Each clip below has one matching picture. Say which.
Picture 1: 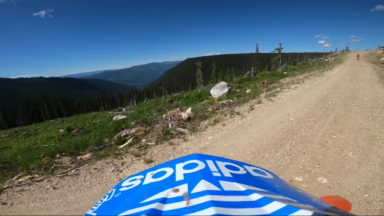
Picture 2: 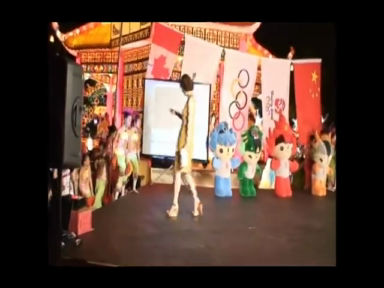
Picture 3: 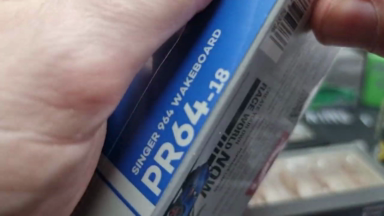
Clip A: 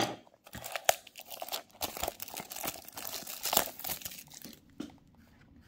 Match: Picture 3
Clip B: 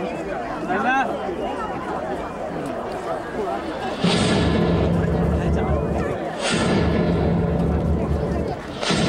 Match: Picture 2